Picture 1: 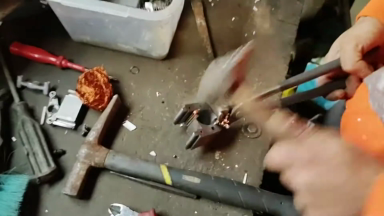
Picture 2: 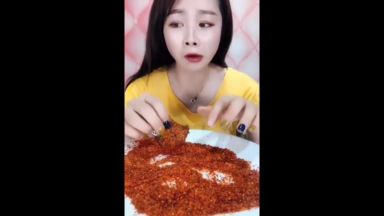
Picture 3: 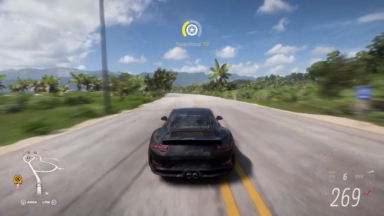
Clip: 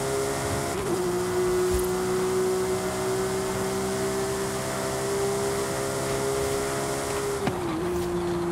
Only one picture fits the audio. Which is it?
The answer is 3